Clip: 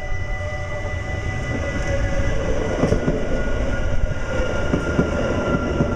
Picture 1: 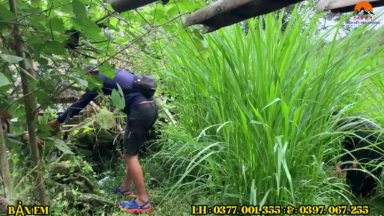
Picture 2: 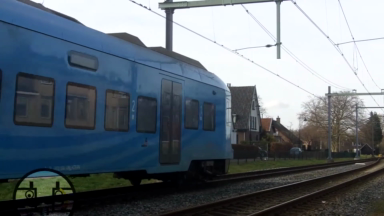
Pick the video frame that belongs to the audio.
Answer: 2